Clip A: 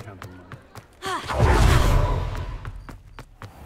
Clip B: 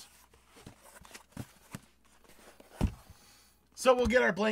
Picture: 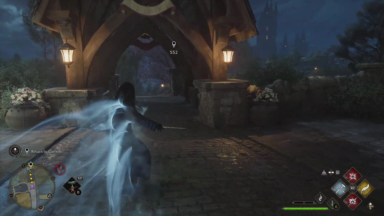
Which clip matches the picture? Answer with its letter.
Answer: A